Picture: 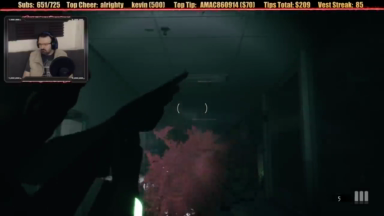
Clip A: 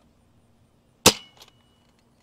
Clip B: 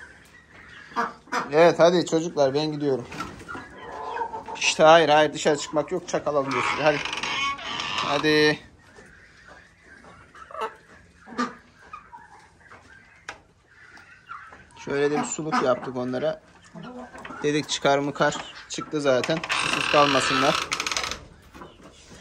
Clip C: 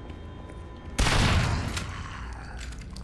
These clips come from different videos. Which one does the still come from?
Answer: C